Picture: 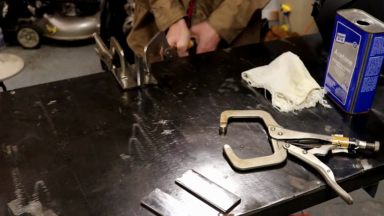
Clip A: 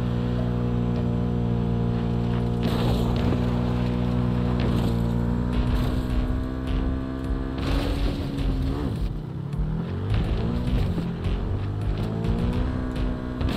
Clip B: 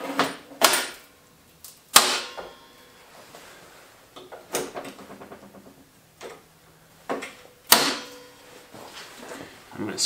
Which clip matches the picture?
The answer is B